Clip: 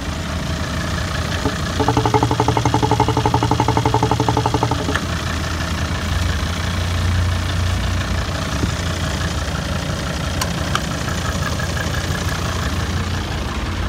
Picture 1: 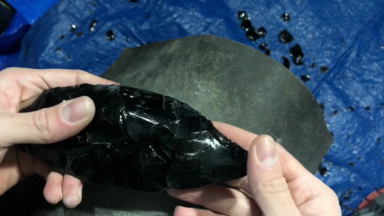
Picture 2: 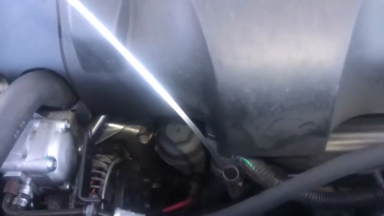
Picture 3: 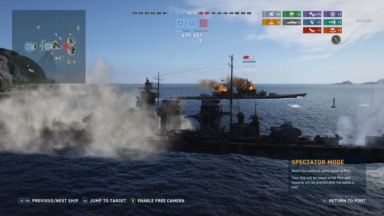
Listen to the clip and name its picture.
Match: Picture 2